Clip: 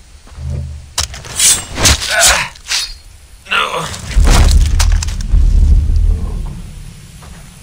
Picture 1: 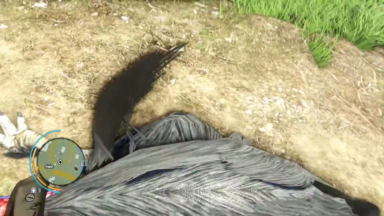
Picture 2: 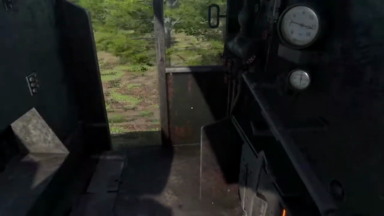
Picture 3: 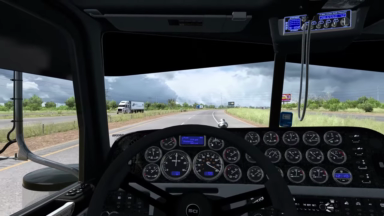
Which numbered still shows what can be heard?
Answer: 1